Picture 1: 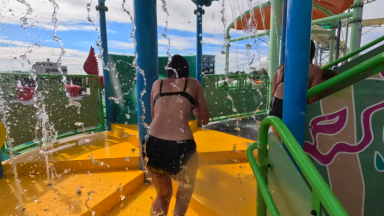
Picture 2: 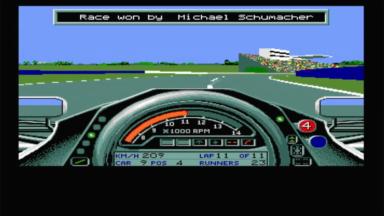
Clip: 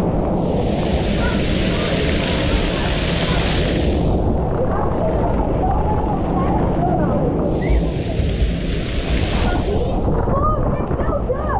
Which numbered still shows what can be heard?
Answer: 1